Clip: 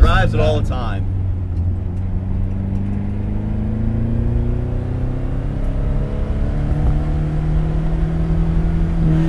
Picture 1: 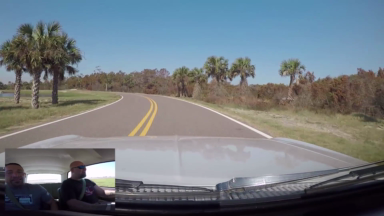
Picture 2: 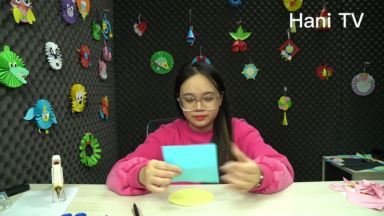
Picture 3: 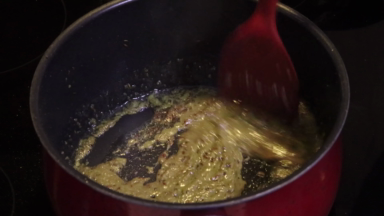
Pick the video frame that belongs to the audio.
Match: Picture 1